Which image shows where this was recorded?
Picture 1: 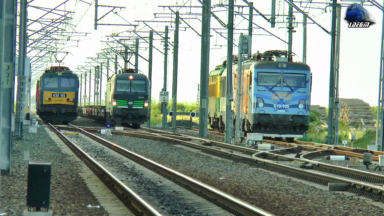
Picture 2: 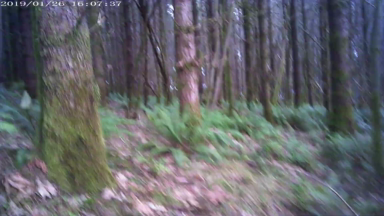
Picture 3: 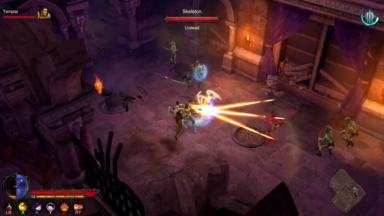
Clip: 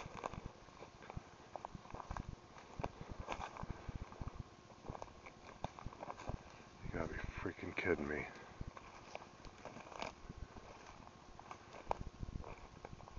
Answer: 2